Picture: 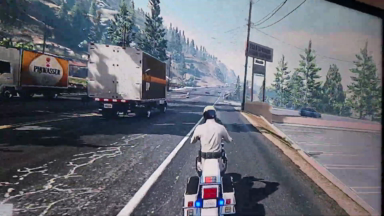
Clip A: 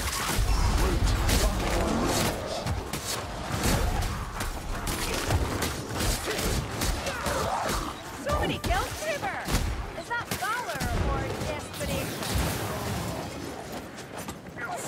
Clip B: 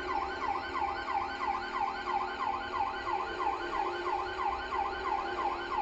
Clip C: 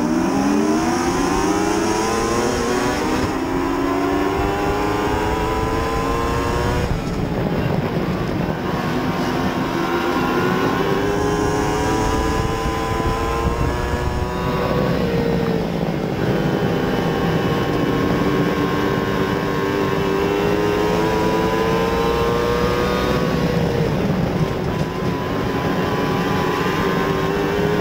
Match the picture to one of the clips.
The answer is B